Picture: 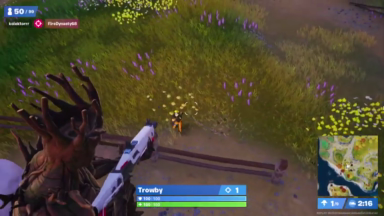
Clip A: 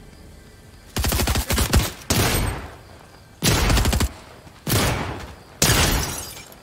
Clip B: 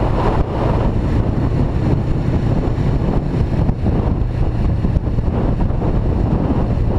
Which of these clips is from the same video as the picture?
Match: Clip A